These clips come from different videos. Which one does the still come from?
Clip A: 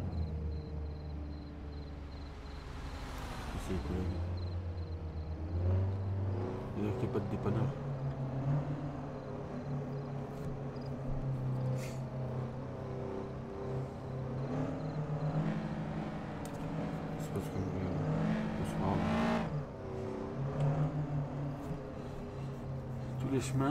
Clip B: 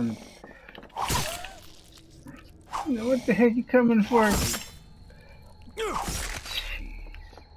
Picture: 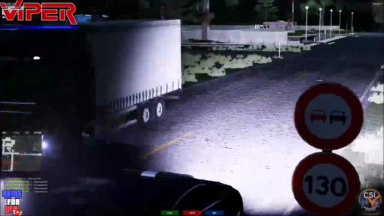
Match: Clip A